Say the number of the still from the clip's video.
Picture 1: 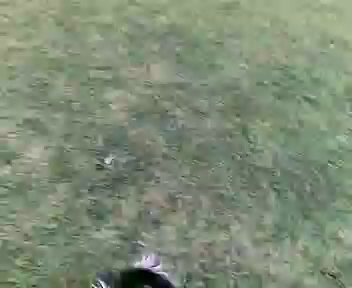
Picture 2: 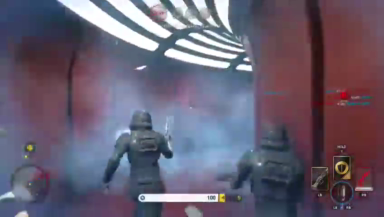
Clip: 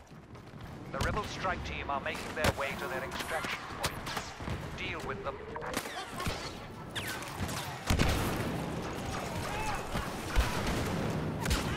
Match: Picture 2